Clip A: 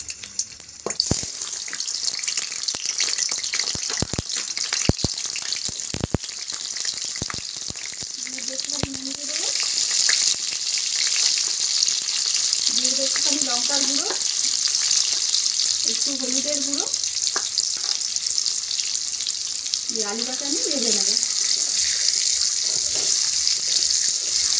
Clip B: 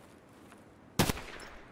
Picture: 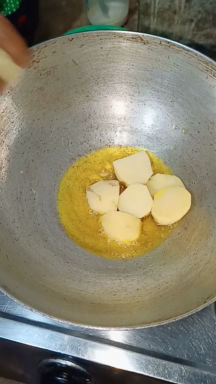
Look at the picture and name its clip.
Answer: A